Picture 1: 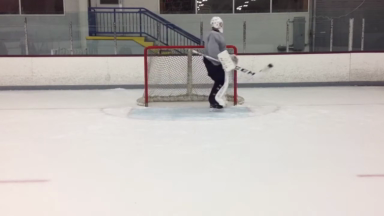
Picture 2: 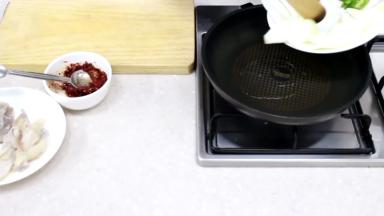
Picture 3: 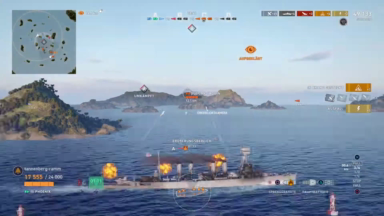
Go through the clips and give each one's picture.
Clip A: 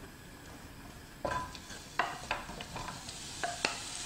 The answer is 2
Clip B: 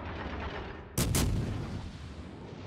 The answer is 3